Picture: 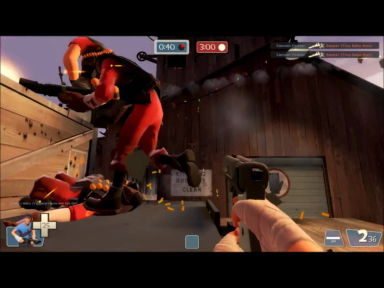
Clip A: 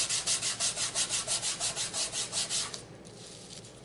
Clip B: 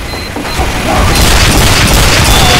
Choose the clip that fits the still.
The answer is B